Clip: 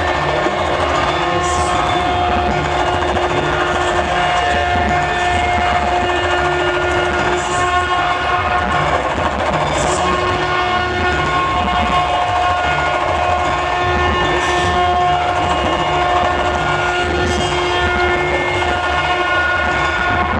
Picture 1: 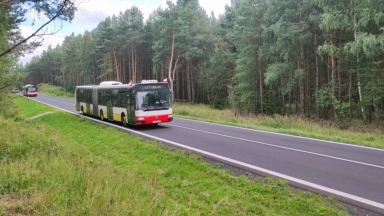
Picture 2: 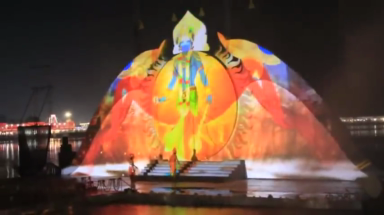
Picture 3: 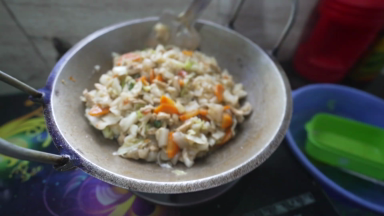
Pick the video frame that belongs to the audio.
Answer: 2